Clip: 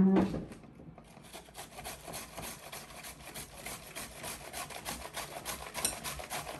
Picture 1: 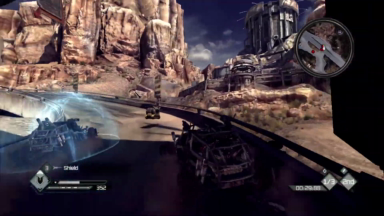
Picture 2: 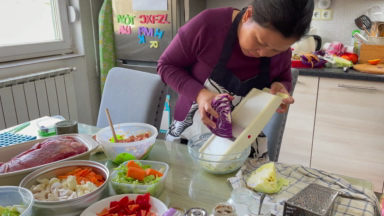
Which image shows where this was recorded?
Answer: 2